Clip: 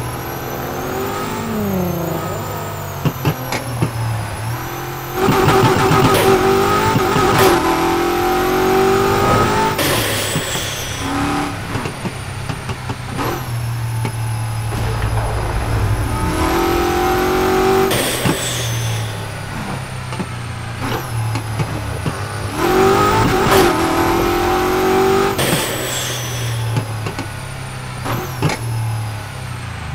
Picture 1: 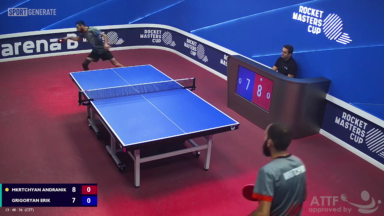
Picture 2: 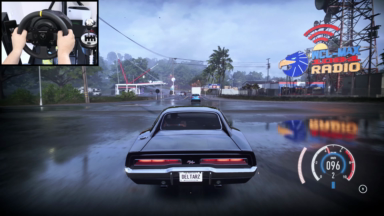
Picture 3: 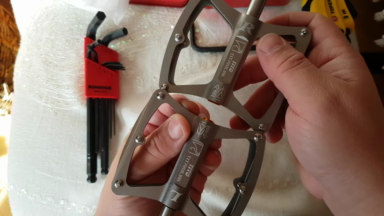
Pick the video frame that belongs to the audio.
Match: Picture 2